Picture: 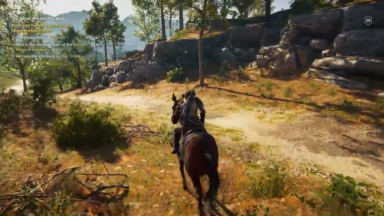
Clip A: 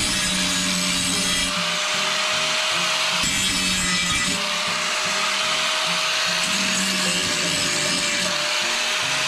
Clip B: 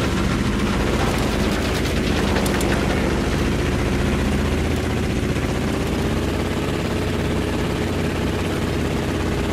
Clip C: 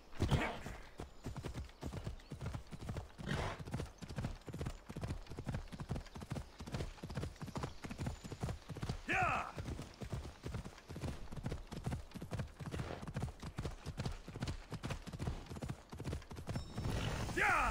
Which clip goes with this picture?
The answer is C